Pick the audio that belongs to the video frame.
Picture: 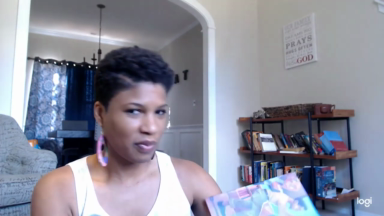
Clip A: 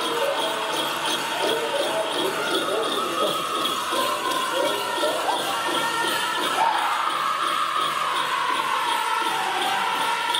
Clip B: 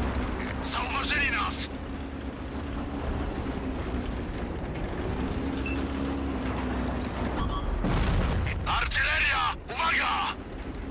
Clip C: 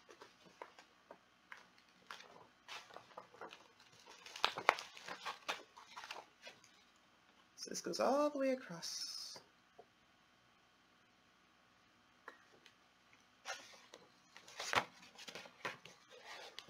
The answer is C